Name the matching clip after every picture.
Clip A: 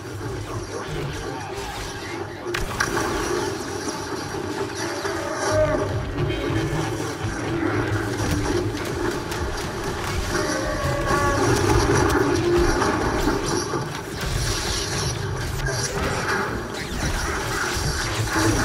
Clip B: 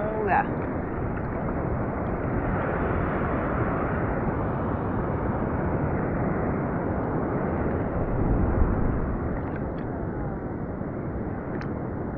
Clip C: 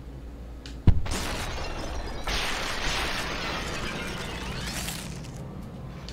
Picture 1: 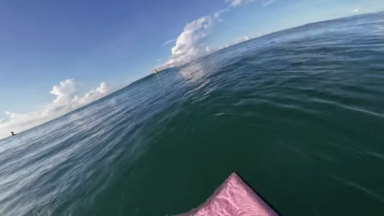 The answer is B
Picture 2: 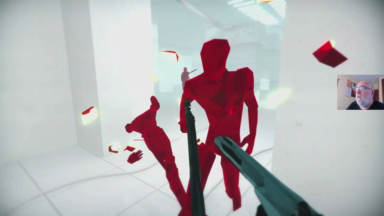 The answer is C